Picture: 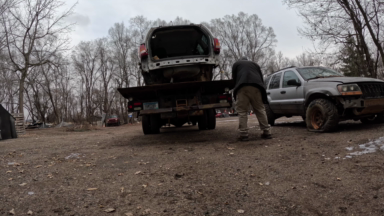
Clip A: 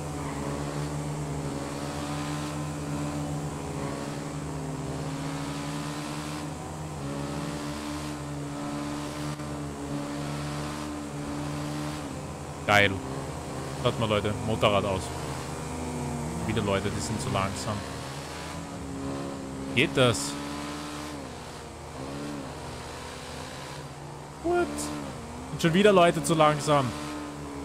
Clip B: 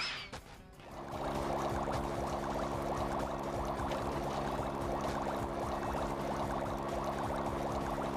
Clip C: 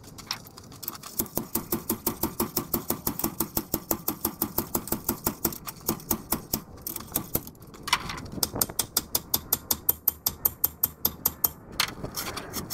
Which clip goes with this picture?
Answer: C